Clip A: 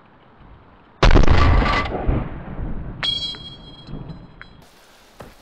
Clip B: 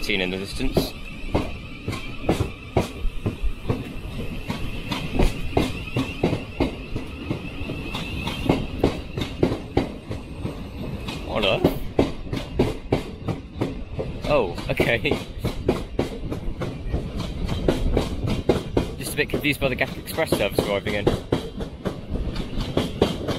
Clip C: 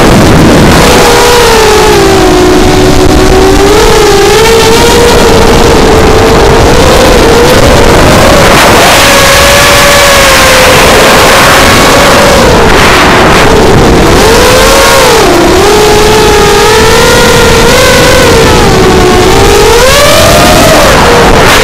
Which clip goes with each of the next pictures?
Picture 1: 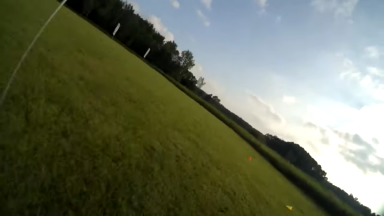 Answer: C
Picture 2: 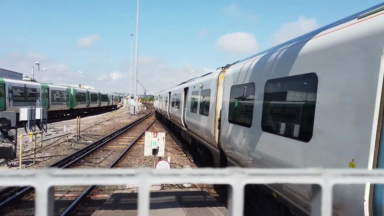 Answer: B